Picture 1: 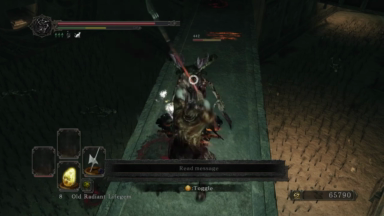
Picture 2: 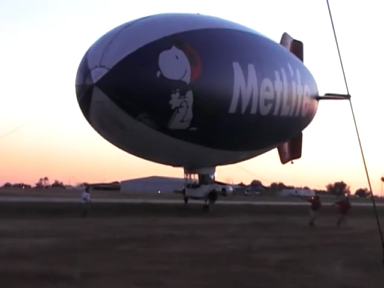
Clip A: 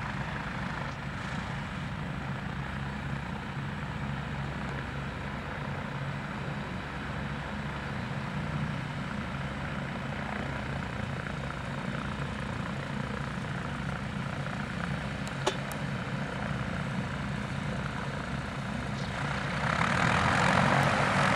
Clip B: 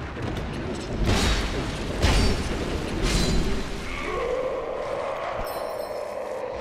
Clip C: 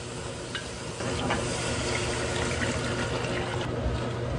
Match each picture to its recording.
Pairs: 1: B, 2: A